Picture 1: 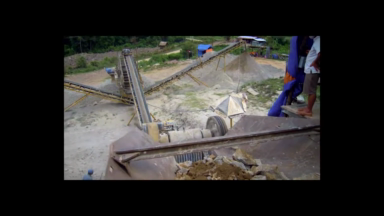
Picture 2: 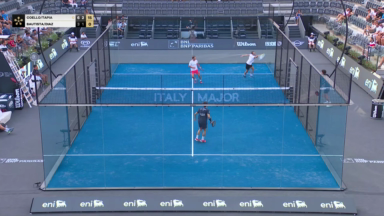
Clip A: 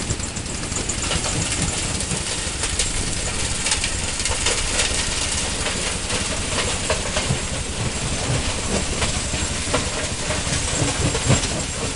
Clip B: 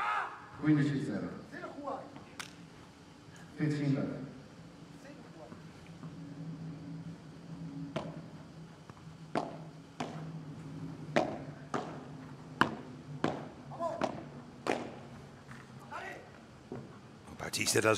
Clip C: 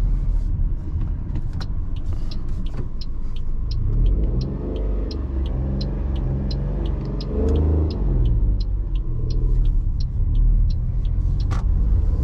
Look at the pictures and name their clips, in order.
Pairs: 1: A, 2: B